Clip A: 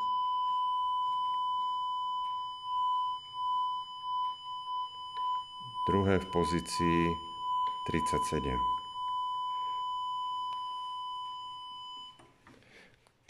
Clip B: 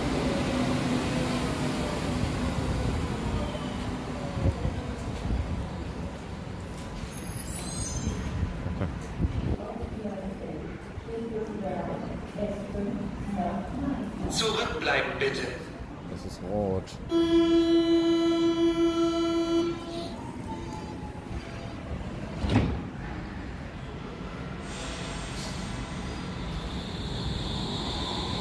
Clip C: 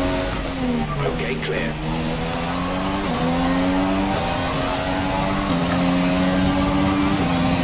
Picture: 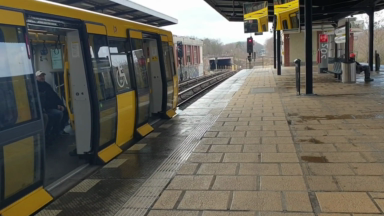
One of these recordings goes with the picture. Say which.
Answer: B